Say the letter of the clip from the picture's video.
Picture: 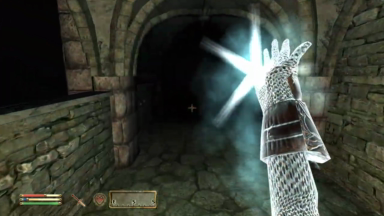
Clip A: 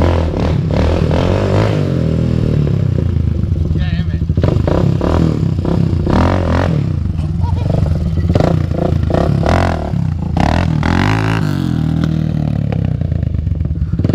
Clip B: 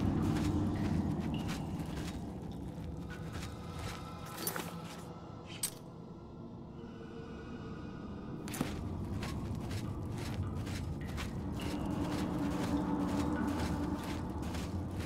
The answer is B